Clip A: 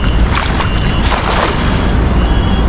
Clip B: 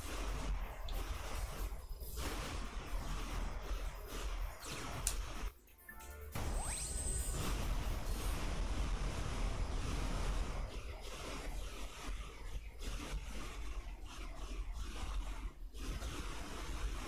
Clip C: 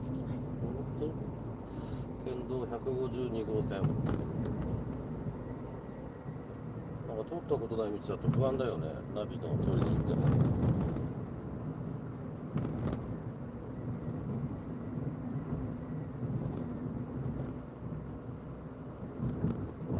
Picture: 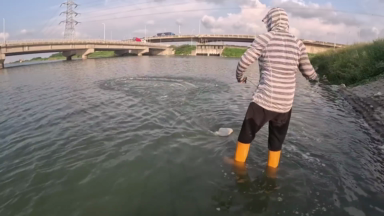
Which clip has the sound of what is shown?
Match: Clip A